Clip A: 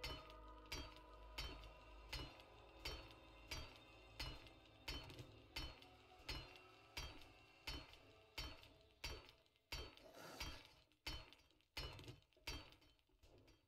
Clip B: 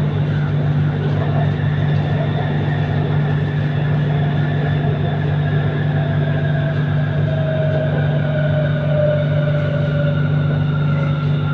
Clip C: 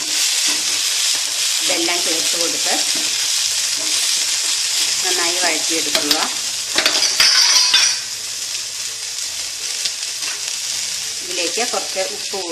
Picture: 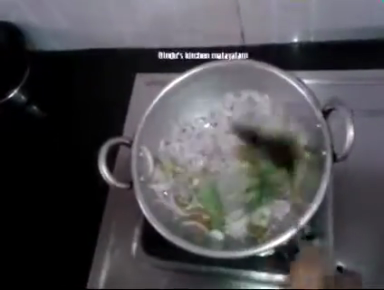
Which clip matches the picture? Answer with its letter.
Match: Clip C